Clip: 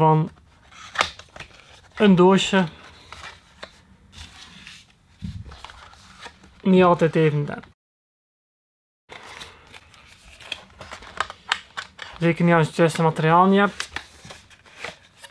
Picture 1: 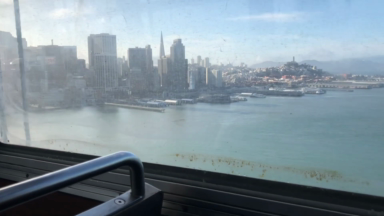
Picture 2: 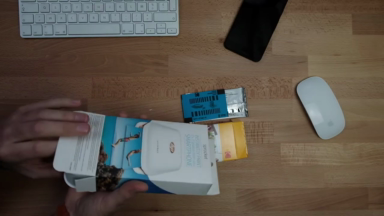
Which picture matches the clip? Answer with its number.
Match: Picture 2